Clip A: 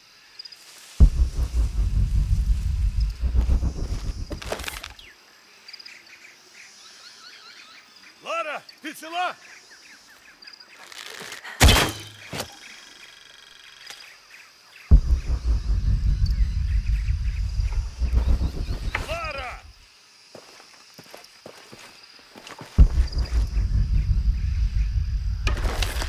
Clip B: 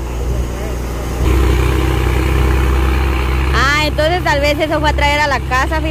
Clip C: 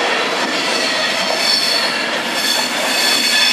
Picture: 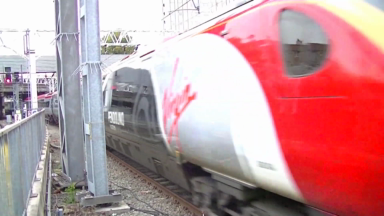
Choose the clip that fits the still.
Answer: C